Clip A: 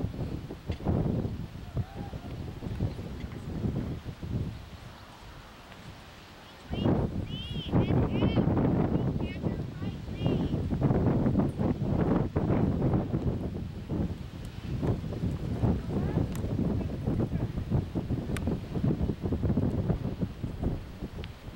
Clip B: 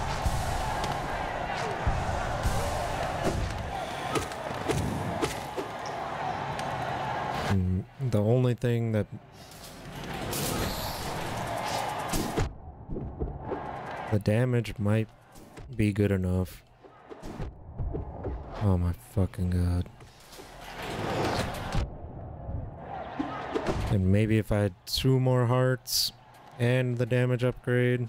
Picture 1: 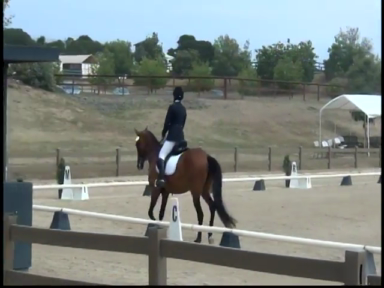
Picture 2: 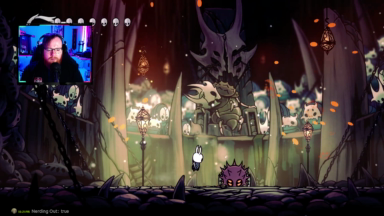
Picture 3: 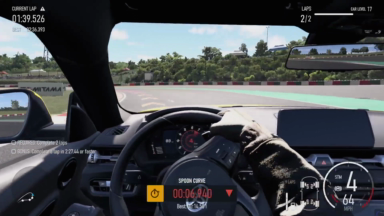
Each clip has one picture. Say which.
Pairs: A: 1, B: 2